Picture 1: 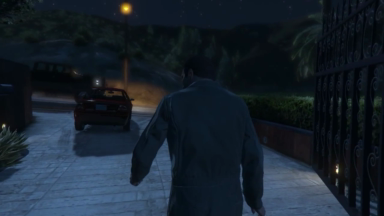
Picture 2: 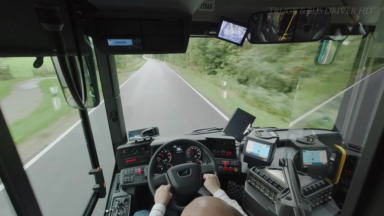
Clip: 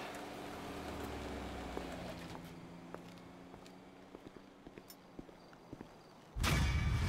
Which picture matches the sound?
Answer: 1